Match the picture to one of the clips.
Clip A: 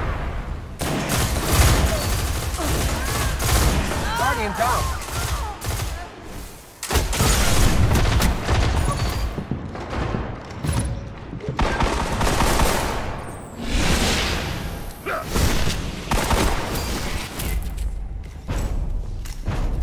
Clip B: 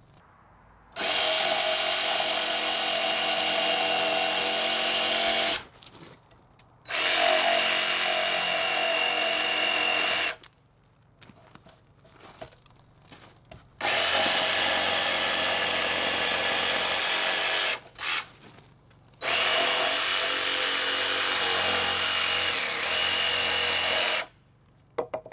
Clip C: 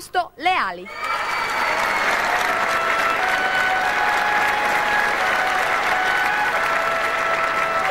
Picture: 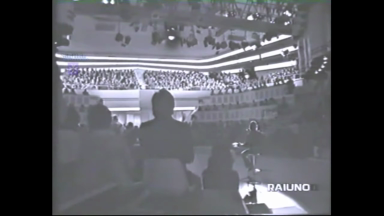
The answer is C